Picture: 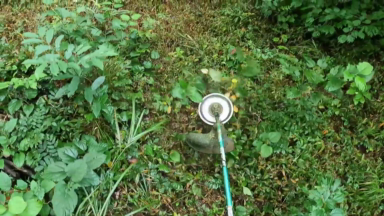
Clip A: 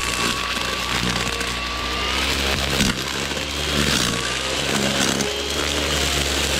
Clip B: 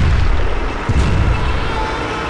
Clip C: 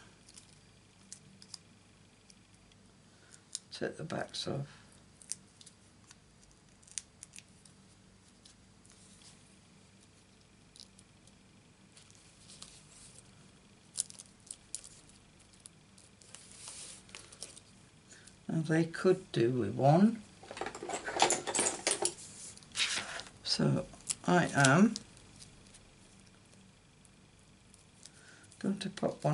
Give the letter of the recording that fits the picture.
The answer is A